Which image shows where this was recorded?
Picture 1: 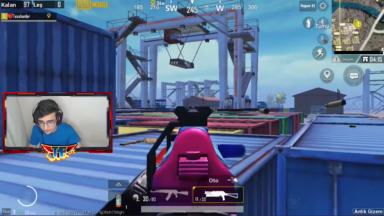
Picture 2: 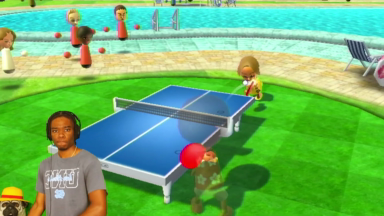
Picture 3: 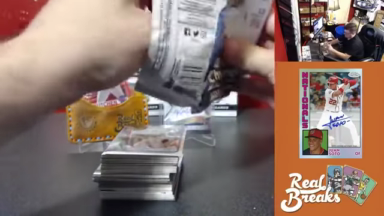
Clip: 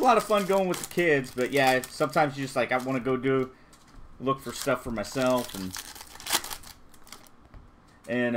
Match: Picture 3